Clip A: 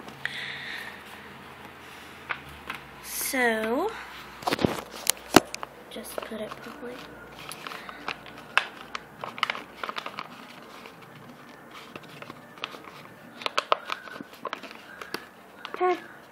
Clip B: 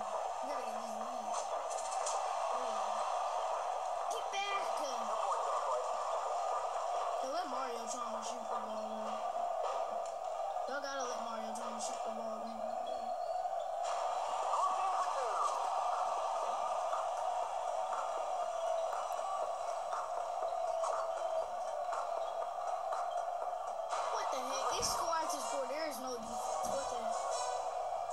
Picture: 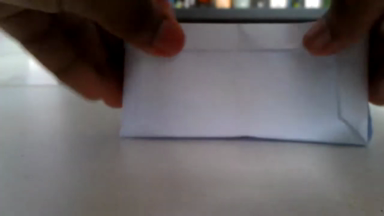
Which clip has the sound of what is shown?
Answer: A